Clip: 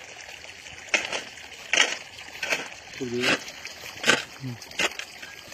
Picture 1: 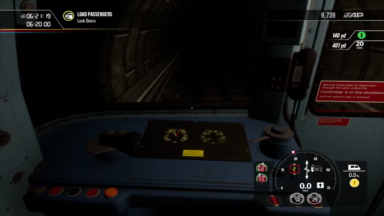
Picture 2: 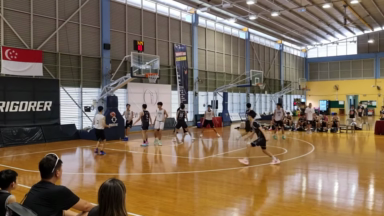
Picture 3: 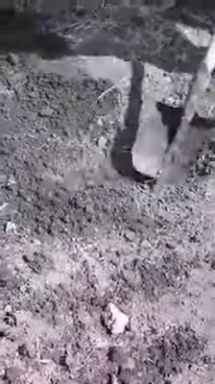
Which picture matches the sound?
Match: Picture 3